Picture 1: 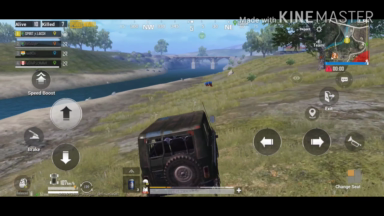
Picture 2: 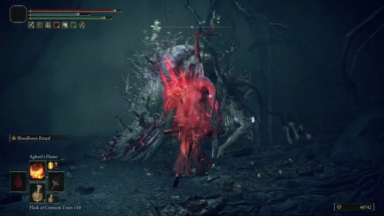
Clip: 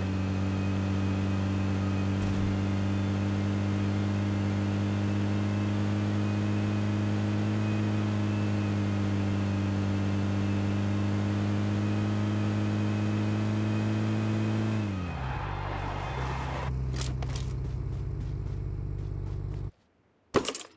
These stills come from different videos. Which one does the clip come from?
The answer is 1